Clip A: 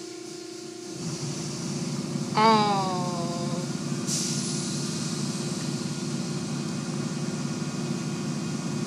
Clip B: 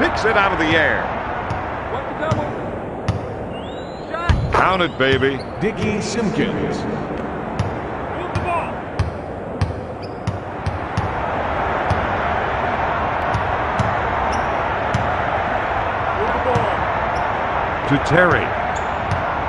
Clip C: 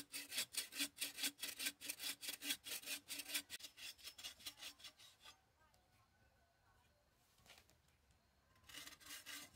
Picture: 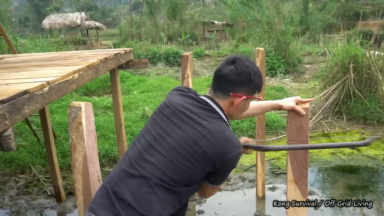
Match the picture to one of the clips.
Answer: C